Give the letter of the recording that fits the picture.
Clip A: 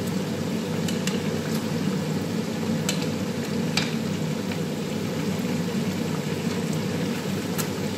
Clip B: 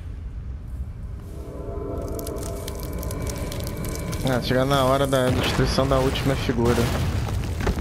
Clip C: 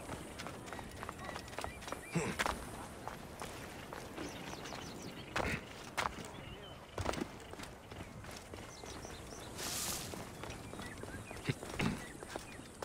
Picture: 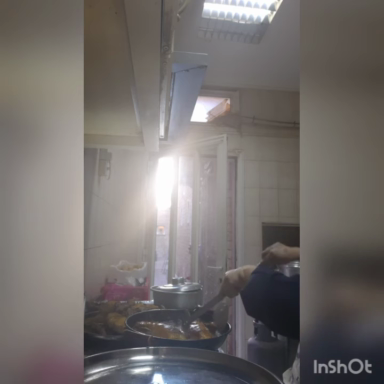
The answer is A